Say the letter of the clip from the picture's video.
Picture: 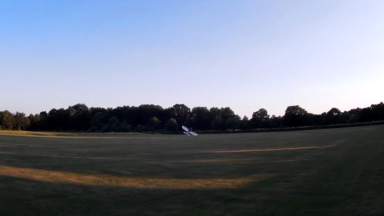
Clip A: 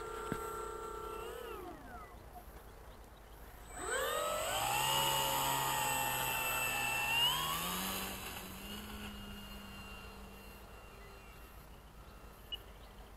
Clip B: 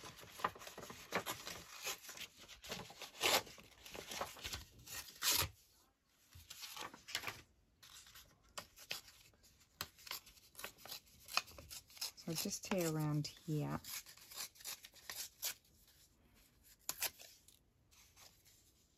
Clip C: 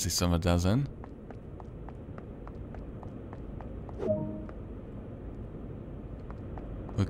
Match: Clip A